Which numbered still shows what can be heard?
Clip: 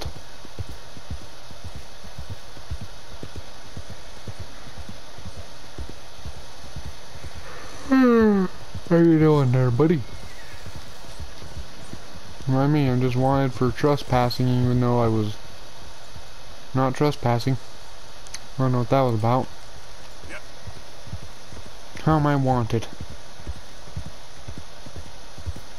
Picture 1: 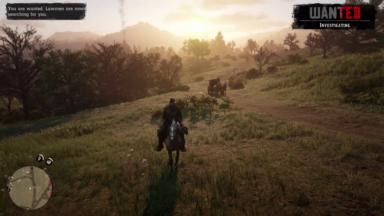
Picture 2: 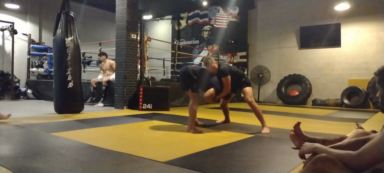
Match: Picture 1